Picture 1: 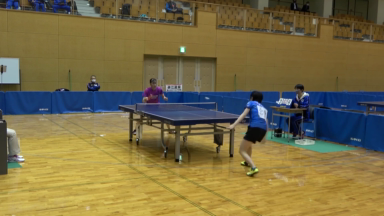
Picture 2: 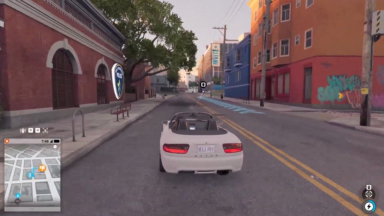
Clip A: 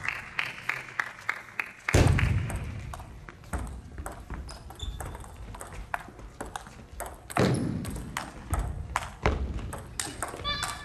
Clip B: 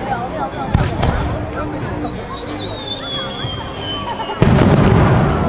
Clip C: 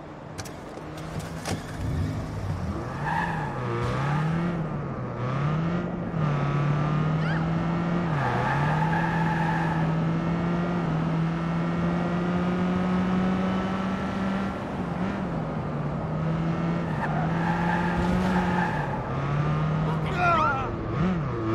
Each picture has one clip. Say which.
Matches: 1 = A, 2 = C